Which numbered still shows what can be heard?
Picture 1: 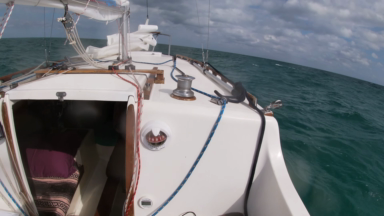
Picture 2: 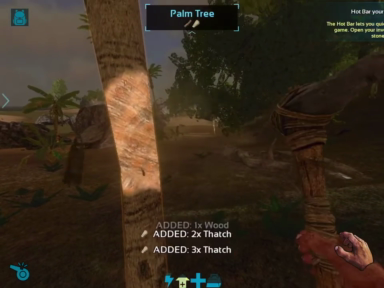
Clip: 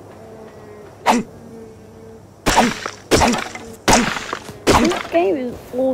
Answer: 2